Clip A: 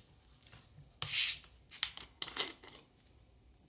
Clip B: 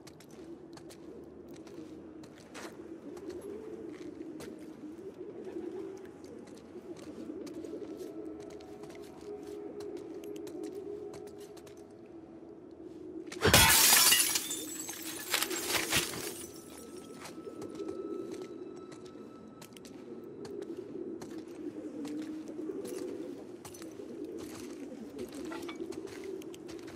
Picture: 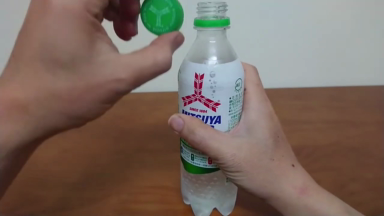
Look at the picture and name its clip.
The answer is A